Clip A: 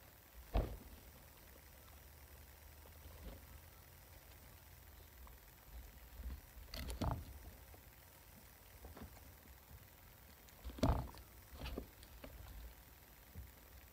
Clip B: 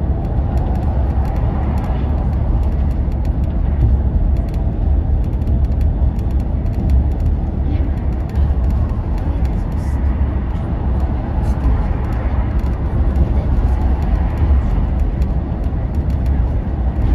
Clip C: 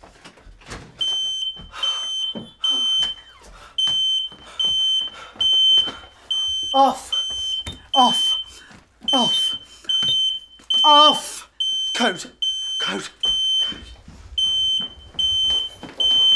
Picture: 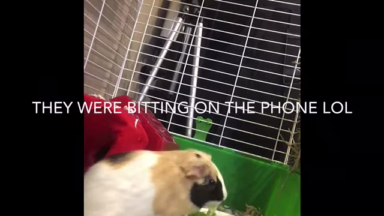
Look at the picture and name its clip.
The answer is A